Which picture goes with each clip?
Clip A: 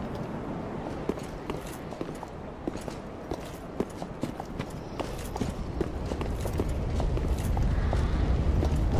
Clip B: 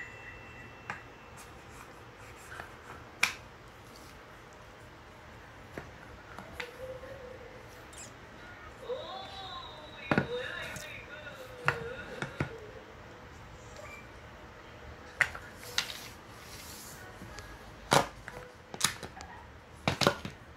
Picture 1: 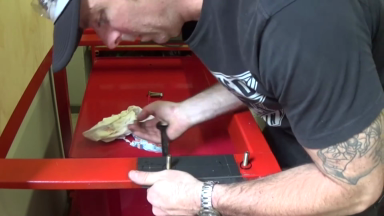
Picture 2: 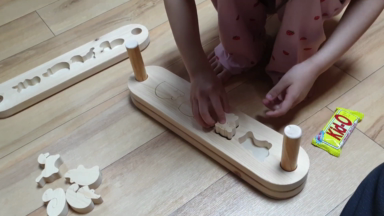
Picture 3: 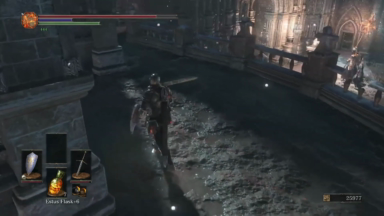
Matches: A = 3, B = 2